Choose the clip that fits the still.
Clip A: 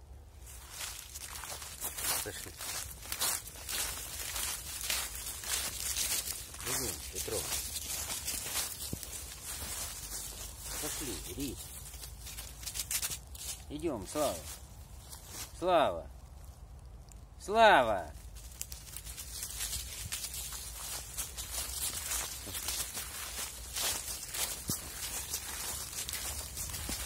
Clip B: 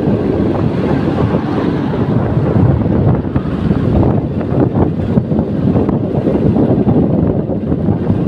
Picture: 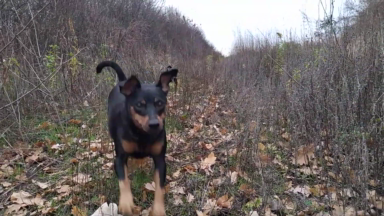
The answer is A